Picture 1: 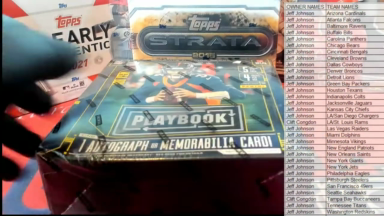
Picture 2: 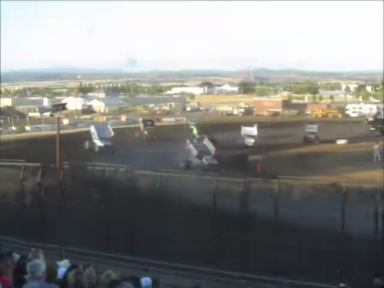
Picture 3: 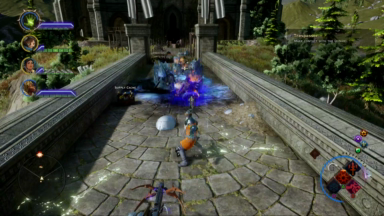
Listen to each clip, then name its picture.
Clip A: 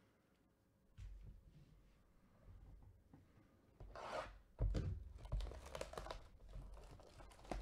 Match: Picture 1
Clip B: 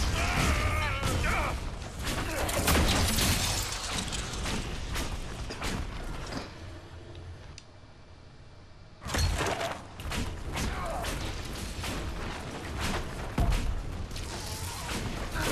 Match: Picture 3